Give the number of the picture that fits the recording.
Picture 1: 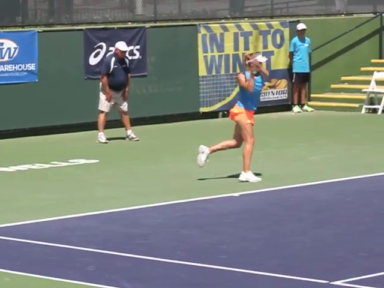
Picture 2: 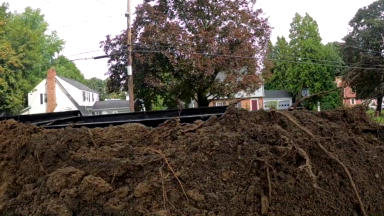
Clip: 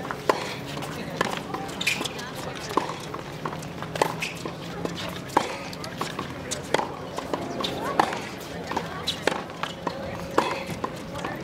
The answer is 1